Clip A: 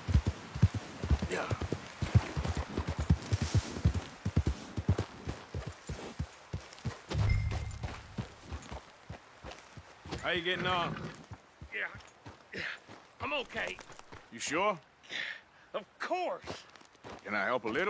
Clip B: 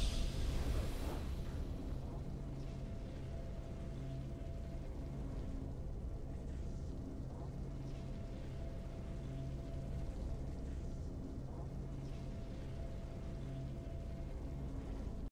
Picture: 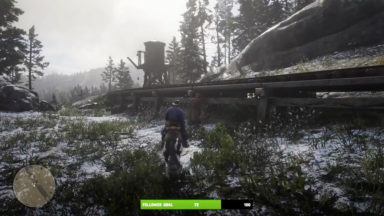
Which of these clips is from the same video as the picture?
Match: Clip A